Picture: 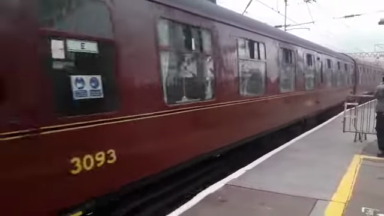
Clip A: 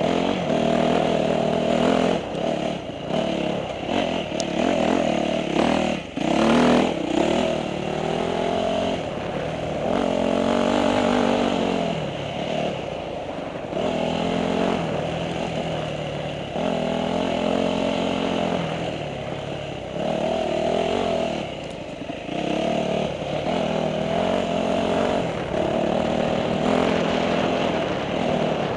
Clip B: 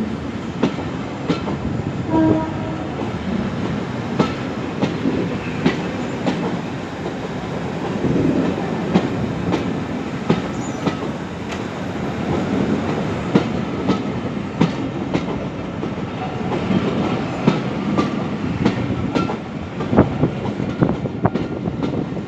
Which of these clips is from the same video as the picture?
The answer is B